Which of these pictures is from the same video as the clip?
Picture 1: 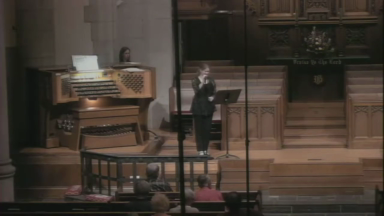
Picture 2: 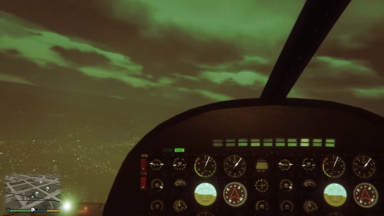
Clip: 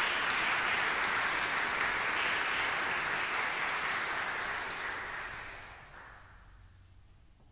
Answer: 1